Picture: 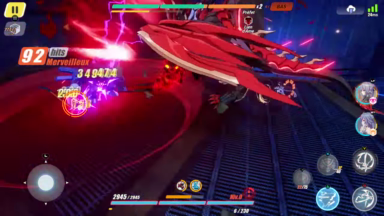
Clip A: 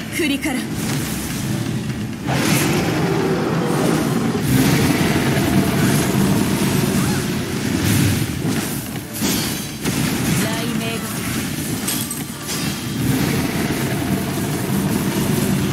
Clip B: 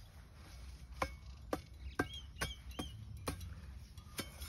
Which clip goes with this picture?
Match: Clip A